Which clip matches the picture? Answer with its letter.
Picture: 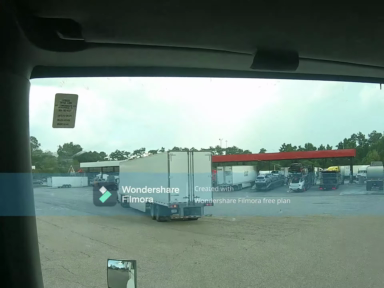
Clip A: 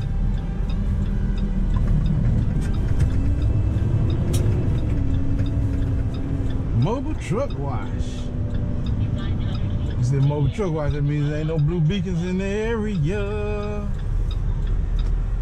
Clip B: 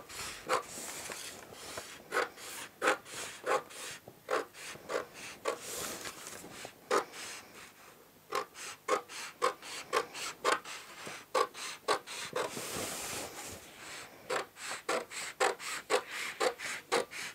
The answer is A